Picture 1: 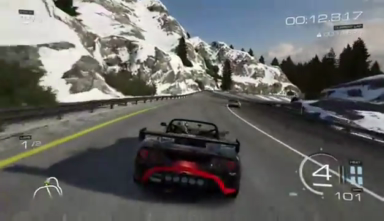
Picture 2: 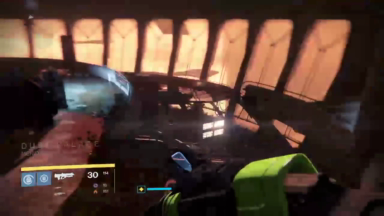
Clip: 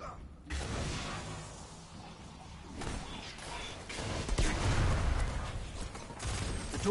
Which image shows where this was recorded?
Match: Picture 2